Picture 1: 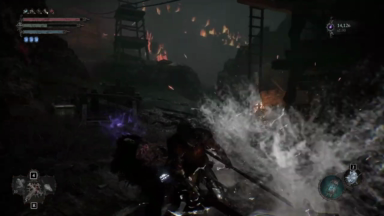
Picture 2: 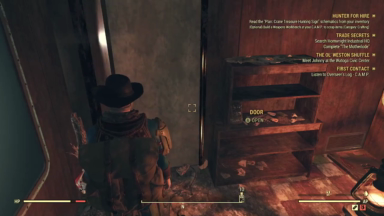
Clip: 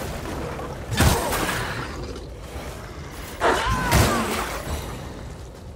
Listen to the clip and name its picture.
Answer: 1